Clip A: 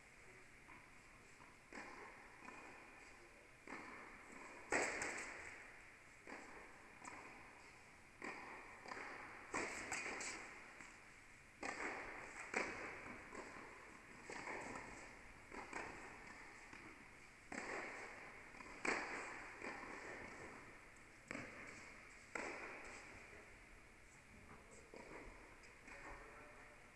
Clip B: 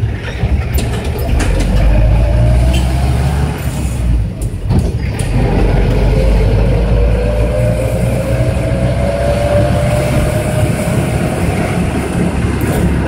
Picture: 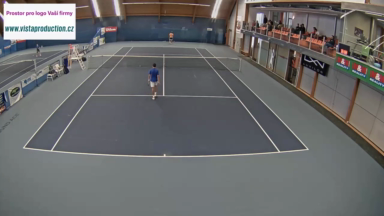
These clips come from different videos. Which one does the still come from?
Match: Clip A